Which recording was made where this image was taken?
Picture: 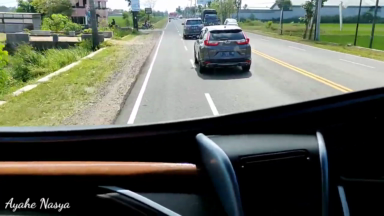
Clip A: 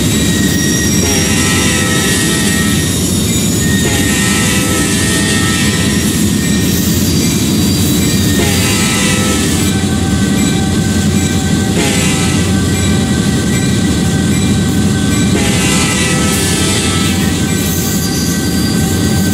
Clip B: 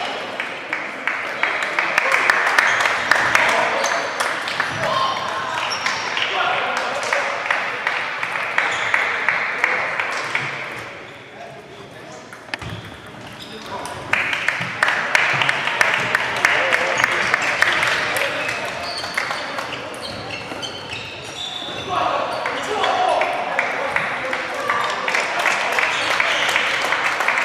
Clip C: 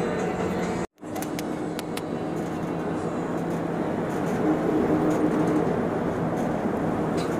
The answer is C